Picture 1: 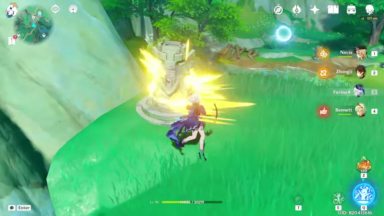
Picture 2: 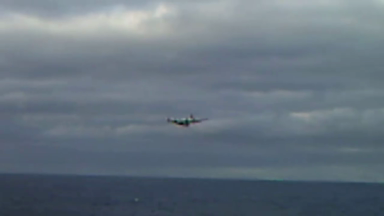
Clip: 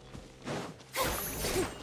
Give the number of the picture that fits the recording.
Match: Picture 1